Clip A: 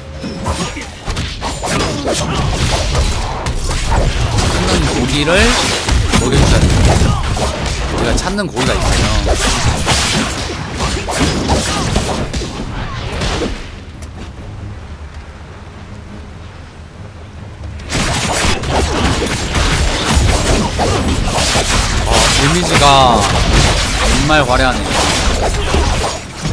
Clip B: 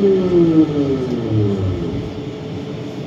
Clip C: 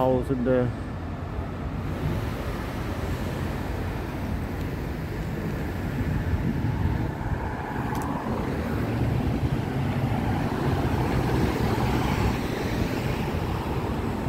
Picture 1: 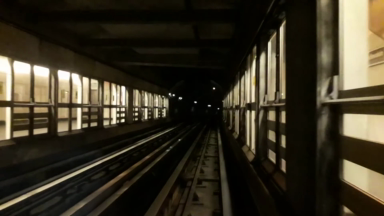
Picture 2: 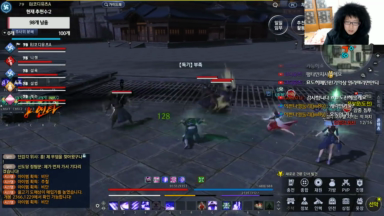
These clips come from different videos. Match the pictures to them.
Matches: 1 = B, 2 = A